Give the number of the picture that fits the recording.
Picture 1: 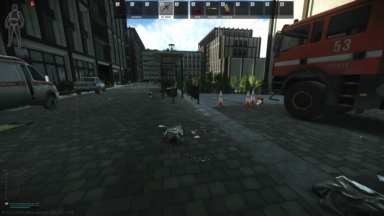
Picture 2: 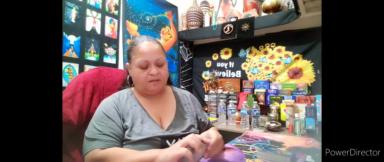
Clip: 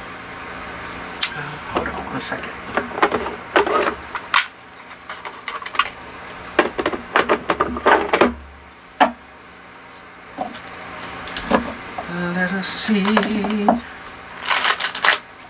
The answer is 2